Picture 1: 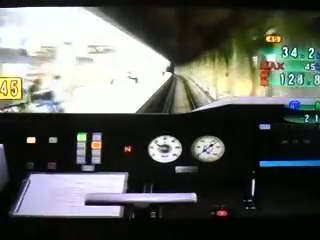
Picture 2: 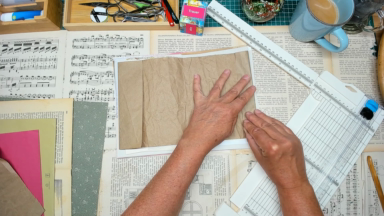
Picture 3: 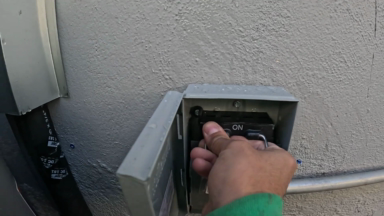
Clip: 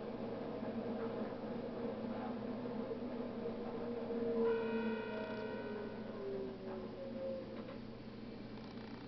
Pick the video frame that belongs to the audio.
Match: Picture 1